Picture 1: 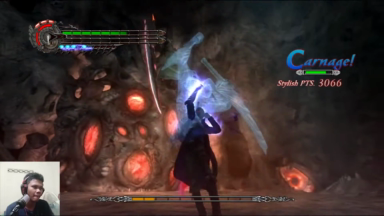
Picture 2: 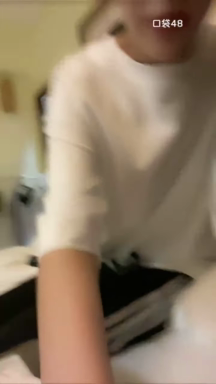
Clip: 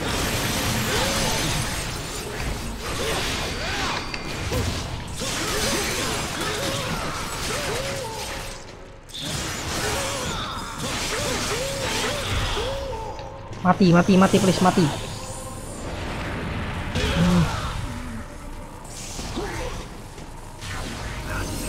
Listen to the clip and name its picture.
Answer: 1